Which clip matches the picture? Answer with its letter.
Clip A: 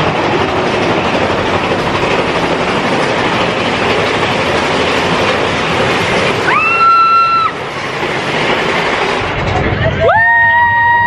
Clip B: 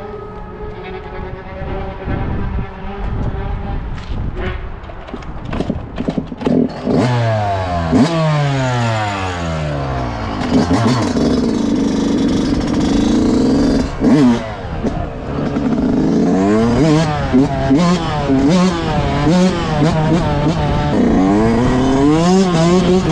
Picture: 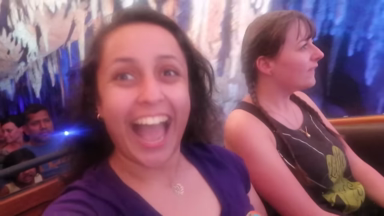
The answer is A